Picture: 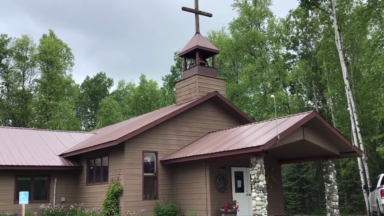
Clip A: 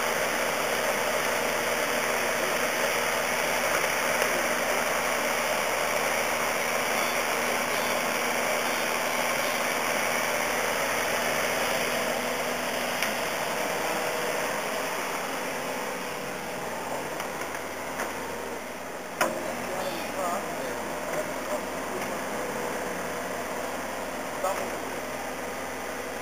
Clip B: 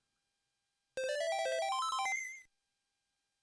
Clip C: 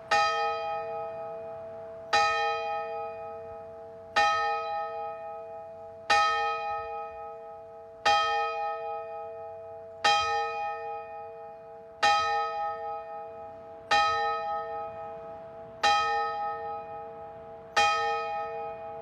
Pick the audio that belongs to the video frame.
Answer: C